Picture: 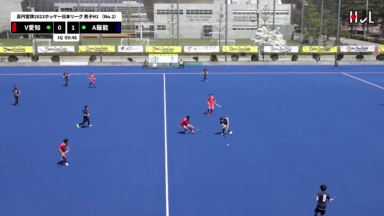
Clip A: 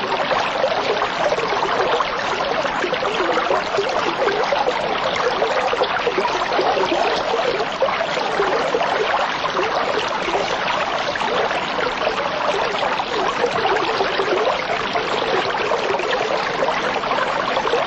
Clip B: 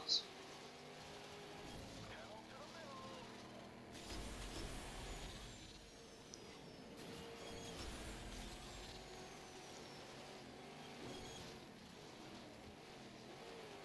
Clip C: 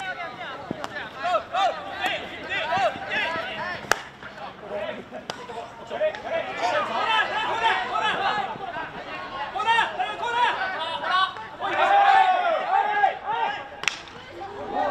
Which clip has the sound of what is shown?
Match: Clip C